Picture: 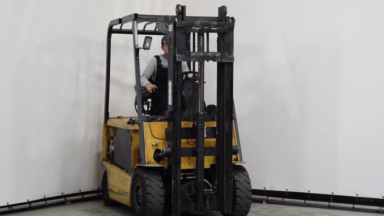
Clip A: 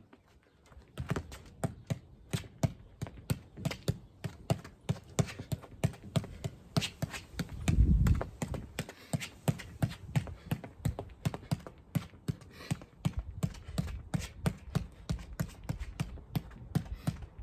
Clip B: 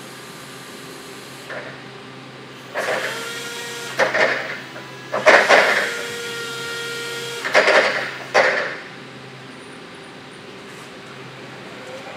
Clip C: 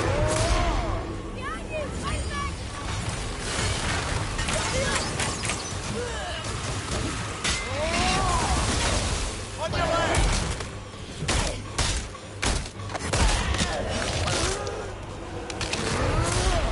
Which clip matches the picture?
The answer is B